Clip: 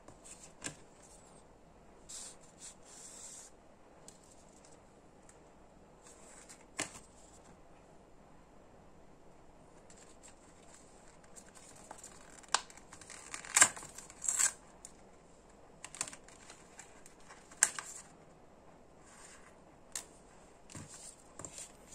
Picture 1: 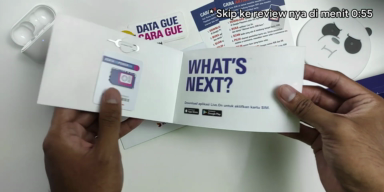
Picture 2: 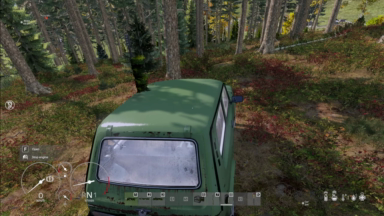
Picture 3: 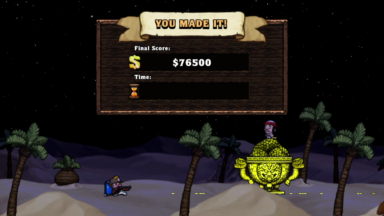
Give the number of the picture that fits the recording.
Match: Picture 1